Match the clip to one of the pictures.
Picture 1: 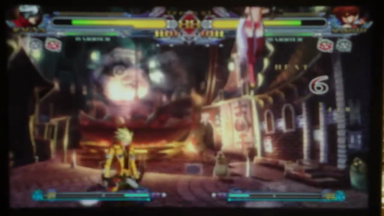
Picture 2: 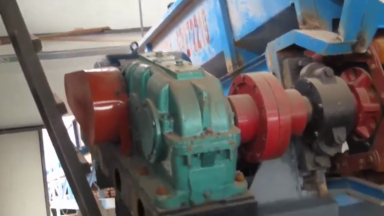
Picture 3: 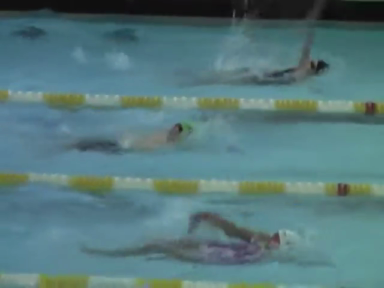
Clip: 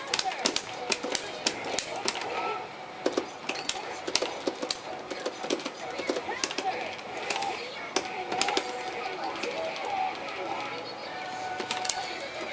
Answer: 1